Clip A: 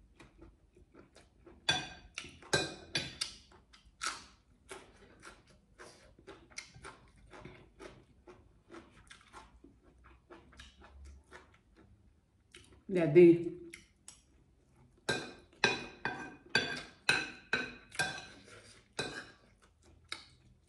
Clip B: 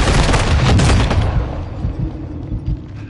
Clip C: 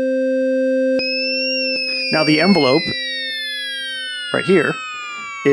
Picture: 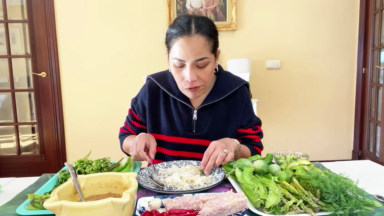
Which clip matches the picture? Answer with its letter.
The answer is A